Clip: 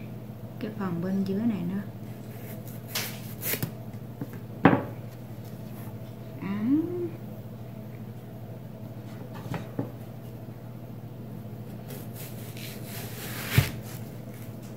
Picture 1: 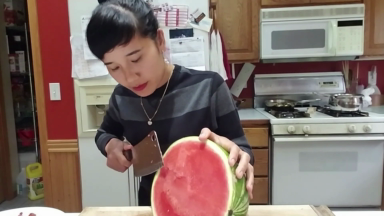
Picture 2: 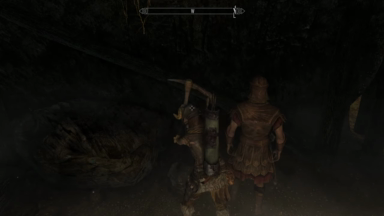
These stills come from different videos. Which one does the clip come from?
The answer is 1